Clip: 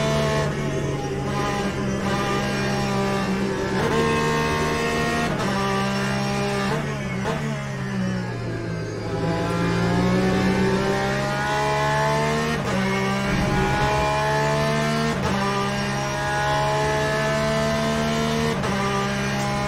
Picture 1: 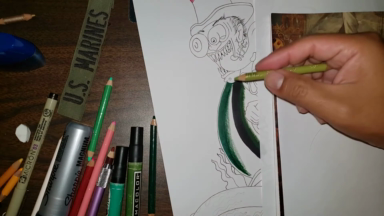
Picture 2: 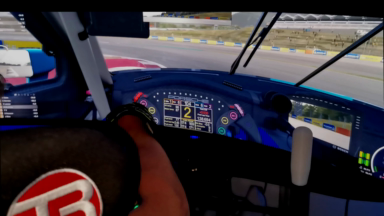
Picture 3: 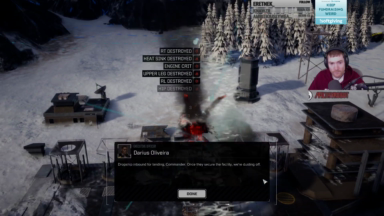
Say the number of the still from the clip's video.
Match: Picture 2